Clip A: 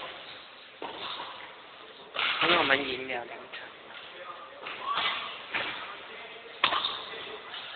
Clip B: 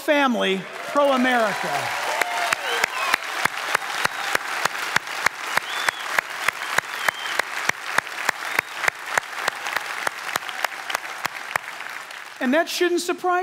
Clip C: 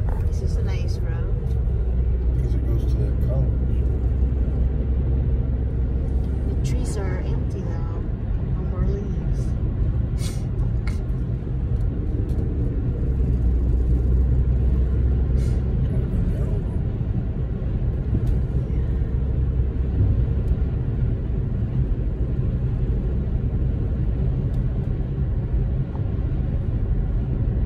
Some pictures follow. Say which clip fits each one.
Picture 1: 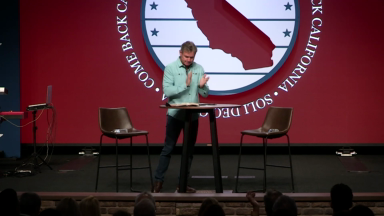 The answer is B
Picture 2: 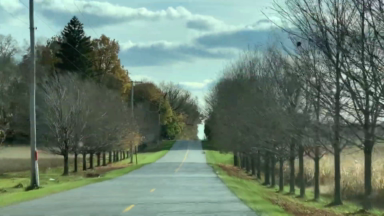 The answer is C